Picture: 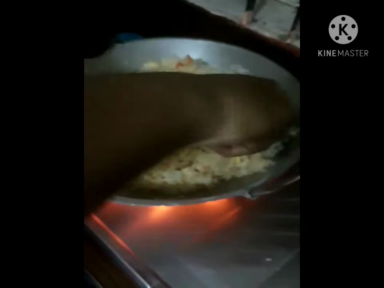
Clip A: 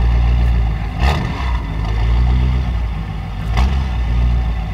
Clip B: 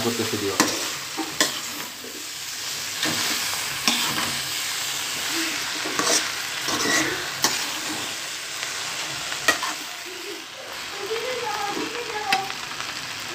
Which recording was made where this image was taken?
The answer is B